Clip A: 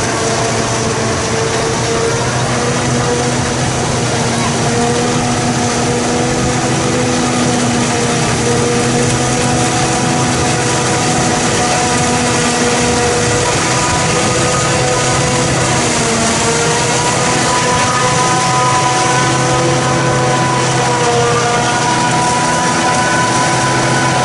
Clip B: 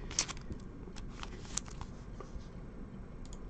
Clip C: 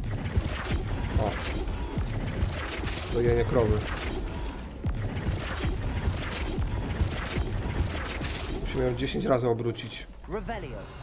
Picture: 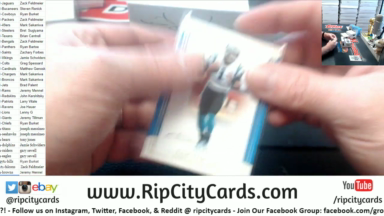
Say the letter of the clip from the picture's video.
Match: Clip B